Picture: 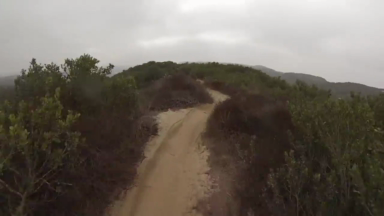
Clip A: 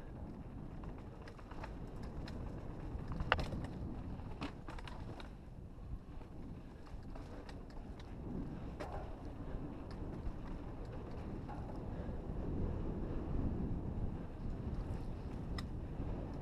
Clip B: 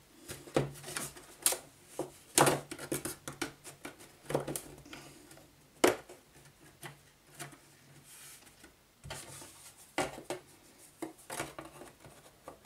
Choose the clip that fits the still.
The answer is A